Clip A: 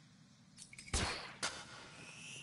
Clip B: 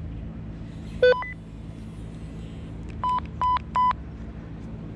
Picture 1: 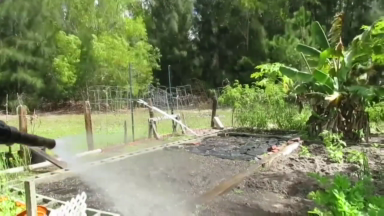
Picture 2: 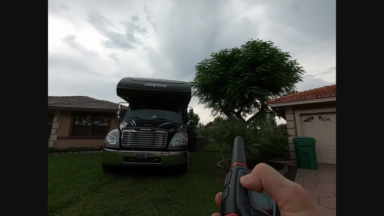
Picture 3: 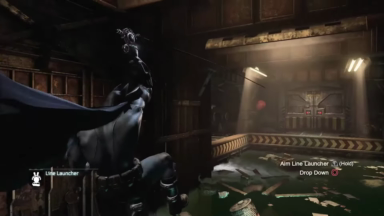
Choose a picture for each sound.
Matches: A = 3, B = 2